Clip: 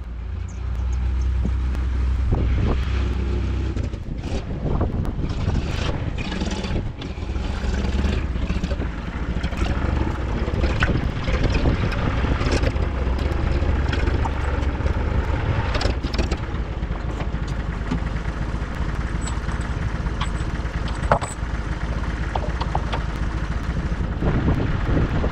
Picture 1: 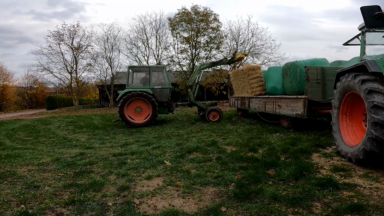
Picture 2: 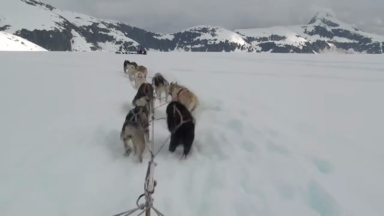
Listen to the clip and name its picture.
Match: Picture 1